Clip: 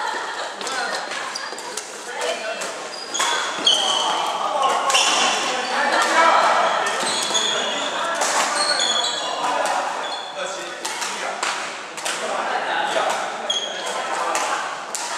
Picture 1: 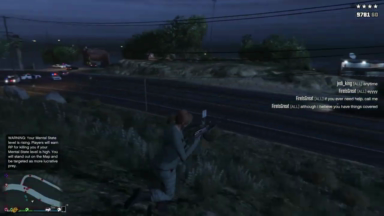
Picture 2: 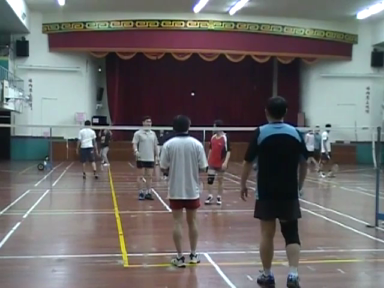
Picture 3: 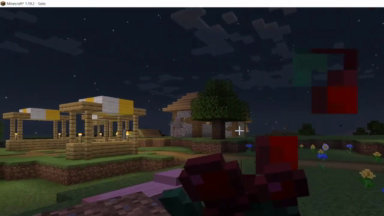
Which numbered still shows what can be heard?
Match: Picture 2